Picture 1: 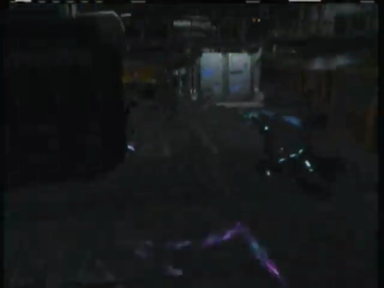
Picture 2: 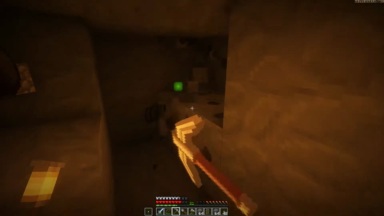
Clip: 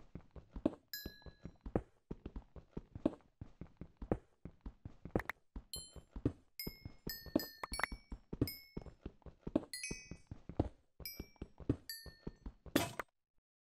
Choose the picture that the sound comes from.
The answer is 2